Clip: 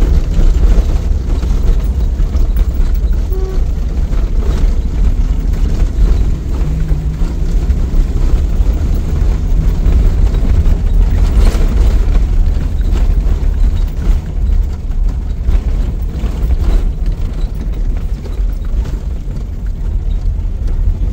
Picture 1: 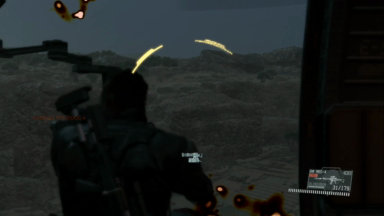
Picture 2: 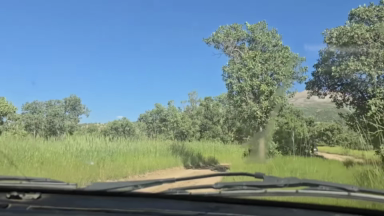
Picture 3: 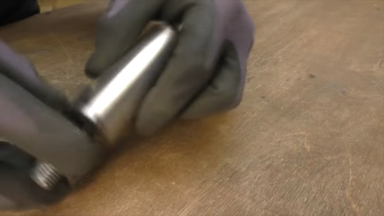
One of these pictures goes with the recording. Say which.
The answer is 2